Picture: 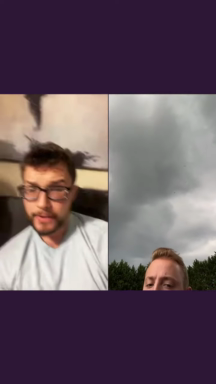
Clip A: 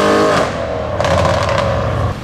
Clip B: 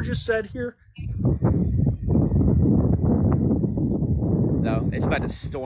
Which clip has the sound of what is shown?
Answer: B